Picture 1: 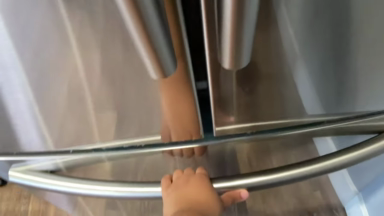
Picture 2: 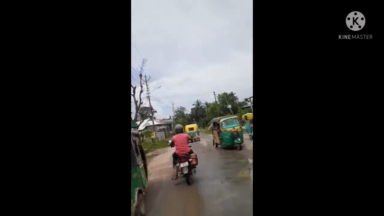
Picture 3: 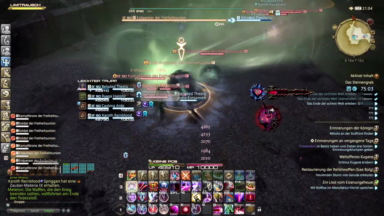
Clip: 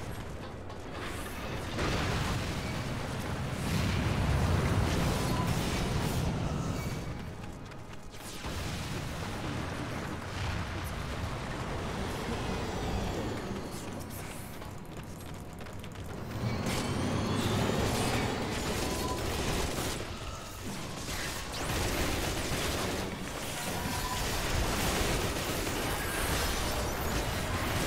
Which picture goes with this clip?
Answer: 3